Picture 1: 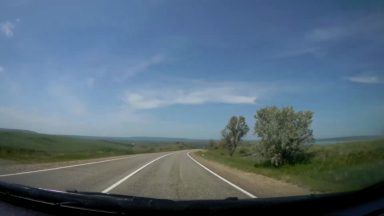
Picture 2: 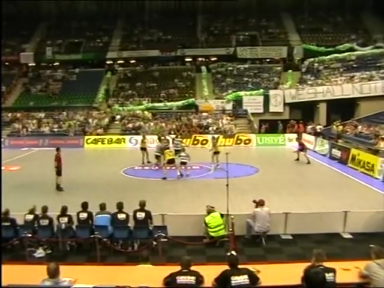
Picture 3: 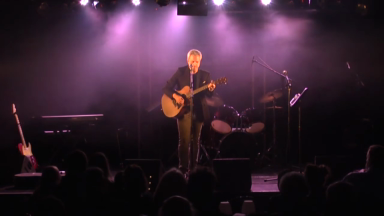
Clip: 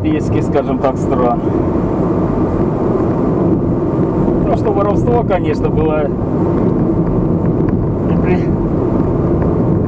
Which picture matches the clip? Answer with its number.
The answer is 1